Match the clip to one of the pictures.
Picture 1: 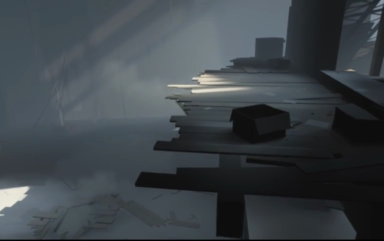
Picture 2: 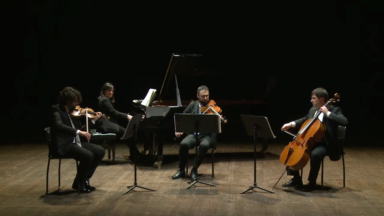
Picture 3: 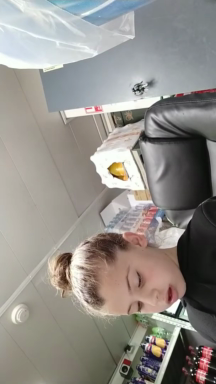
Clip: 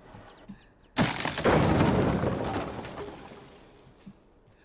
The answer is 1